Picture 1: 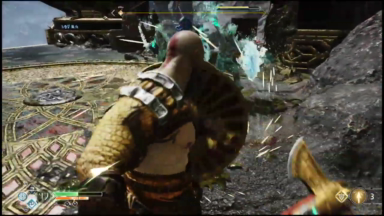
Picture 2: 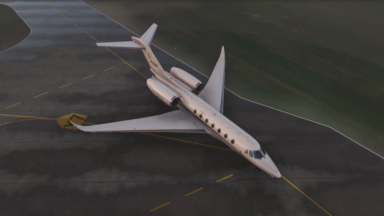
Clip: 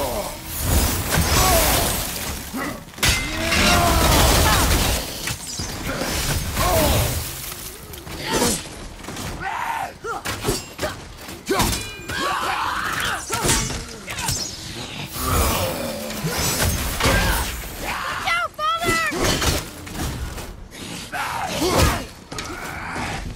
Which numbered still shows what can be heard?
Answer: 1